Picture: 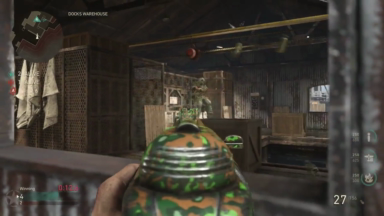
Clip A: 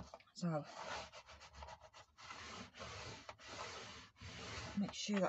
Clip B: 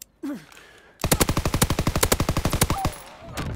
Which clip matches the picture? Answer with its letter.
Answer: B